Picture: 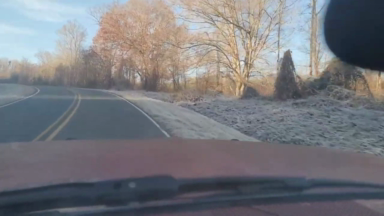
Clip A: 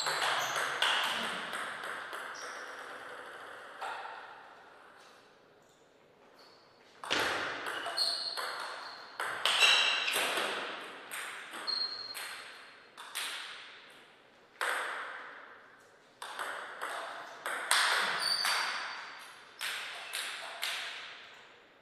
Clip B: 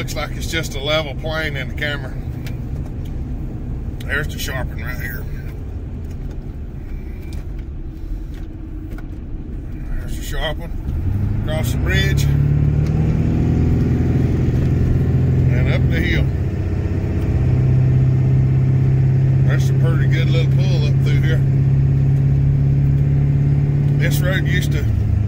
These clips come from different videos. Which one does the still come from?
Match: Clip B